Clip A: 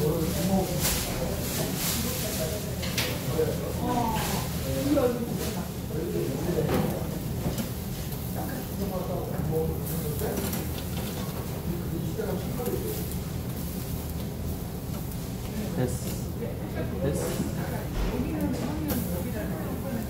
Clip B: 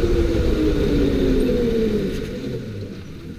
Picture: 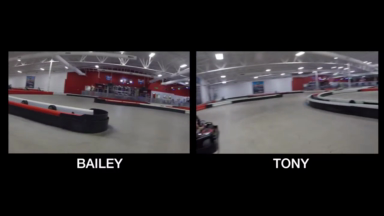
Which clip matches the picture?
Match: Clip B